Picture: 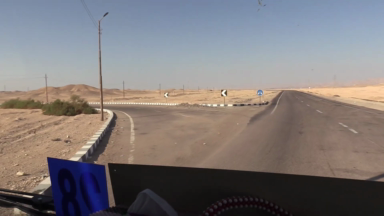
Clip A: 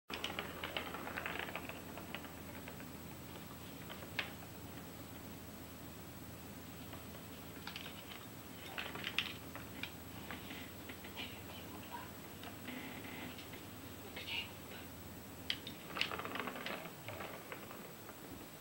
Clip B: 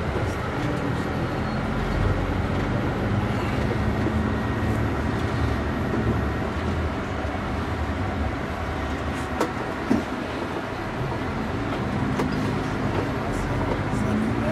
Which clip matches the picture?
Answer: B